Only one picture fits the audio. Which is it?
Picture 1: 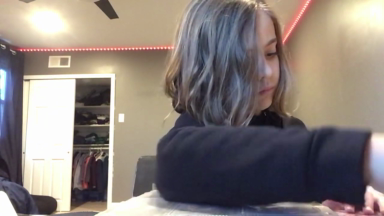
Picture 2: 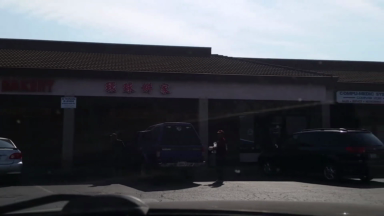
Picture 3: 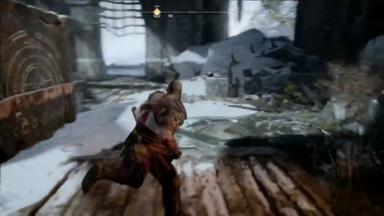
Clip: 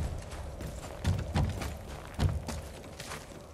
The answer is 3